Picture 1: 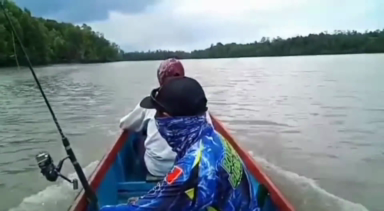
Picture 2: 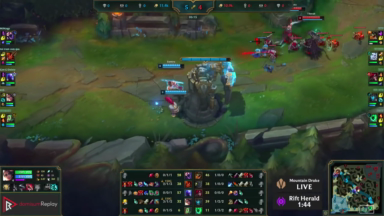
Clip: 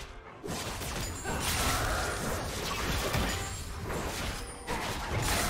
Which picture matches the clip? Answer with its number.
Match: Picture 2